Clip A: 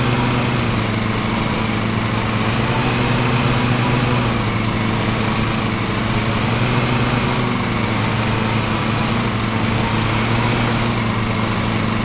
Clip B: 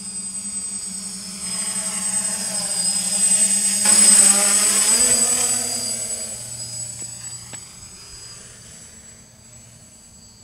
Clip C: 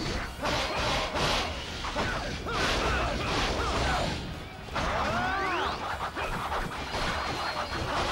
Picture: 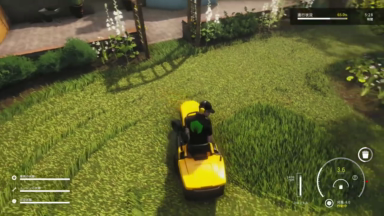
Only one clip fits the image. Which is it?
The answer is A